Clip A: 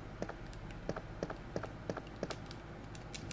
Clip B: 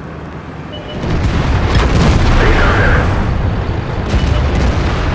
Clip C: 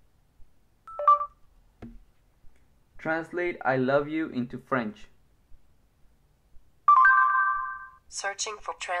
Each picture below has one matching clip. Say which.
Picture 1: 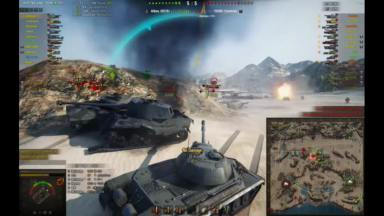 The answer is B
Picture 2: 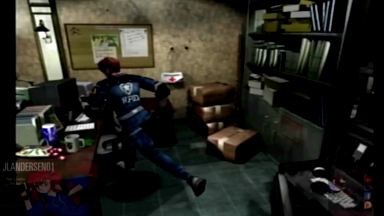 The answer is A